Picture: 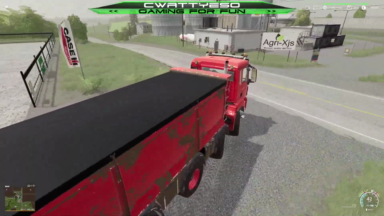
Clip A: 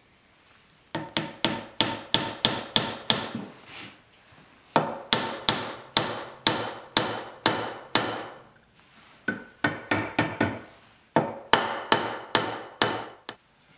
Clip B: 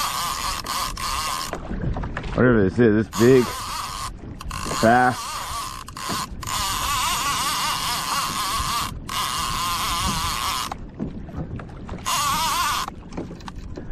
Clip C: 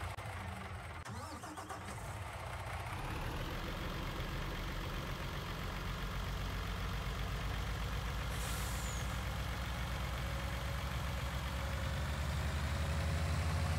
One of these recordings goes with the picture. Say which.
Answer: C